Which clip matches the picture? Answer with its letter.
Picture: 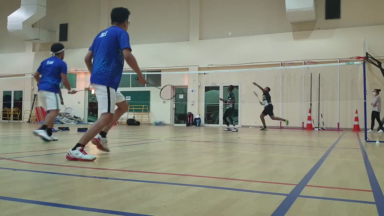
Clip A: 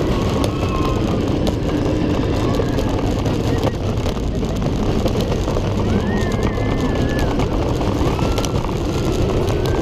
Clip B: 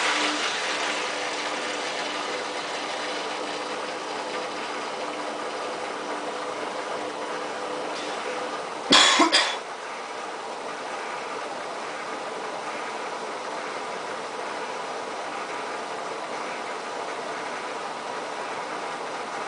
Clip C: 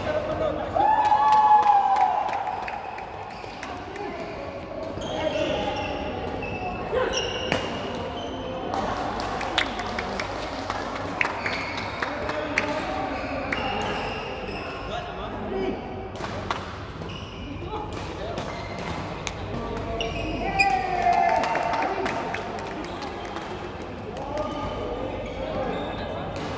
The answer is C